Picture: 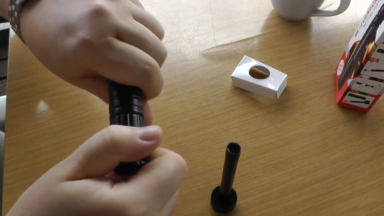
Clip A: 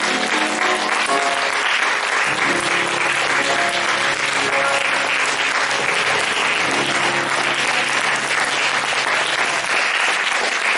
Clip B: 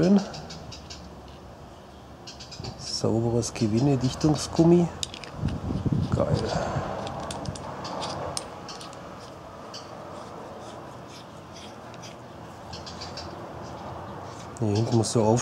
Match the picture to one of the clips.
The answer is B